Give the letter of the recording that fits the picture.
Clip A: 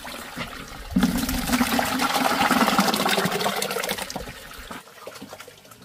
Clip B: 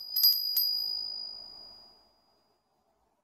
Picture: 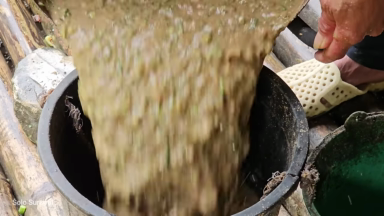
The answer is A